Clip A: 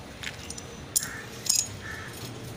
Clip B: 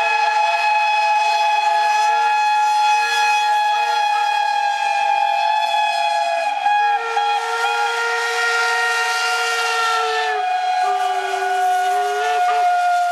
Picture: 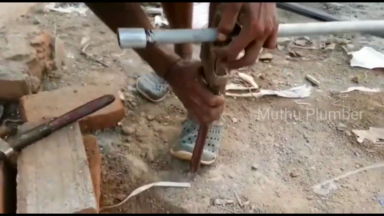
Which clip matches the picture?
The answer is A